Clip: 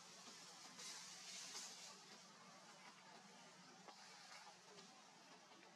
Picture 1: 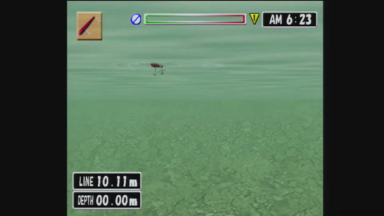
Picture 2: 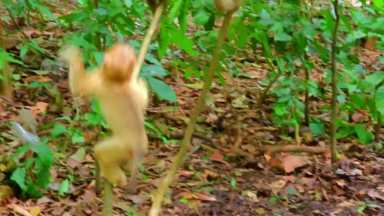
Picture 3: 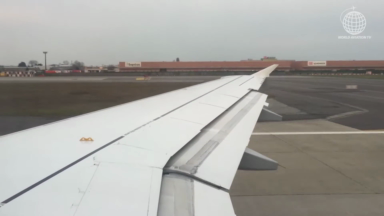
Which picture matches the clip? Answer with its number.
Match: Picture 2